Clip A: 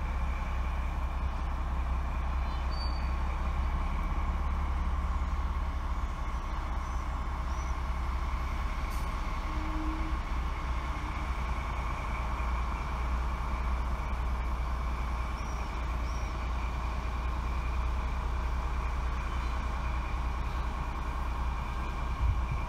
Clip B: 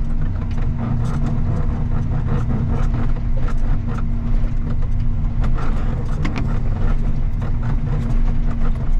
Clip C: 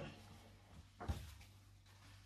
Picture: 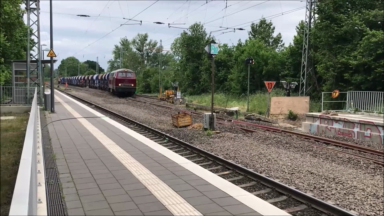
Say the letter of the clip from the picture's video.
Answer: A